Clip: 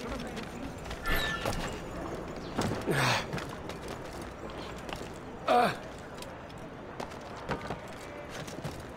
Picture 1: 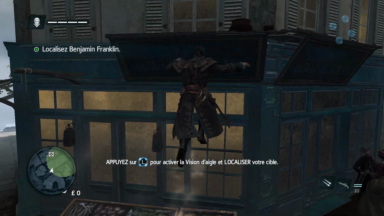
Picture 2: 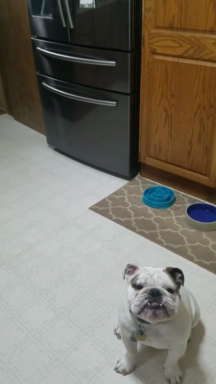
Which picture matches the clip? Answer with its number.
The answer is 1